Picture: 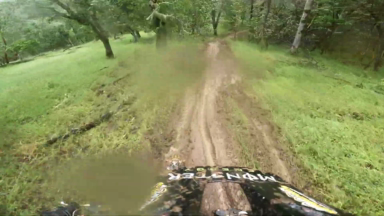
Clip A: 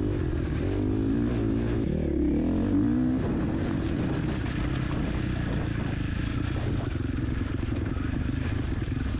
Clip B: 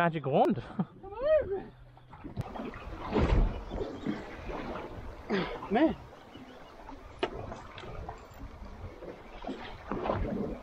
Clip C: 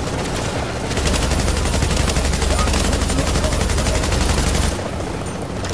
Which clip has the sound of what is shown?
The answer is A